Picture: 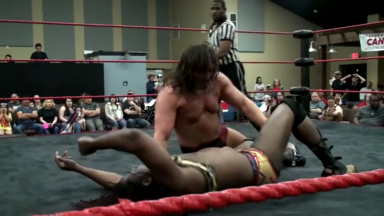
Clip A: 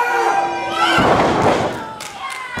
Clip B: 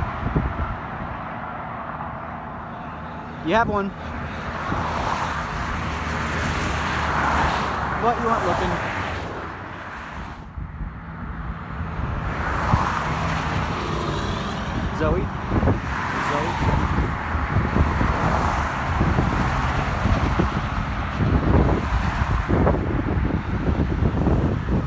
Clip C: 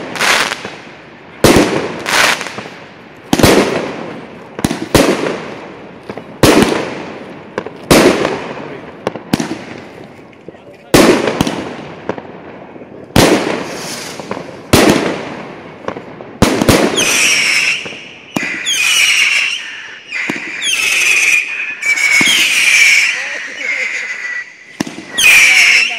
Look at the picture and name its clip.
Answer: A